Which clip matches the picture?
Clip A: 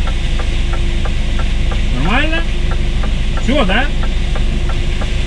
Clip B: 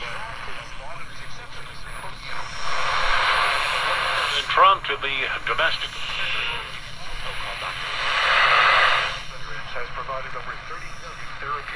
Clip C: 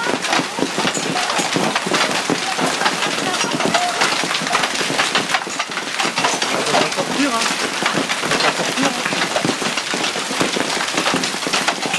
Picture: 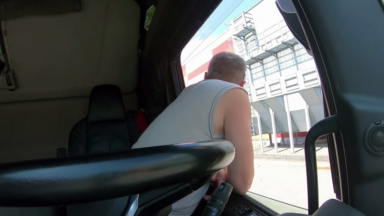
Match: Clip A